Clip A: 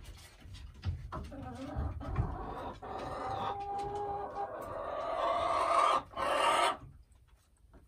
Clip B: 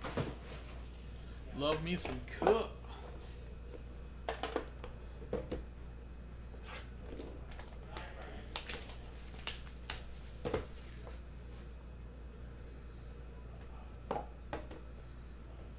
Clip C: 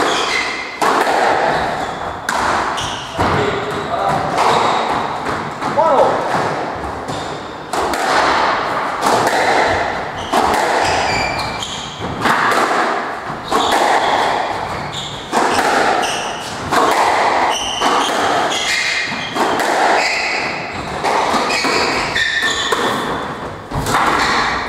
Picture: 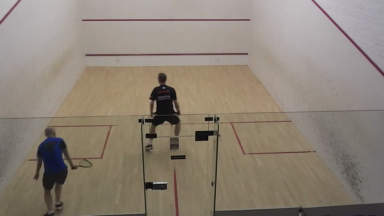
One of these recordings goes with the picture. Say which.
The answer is C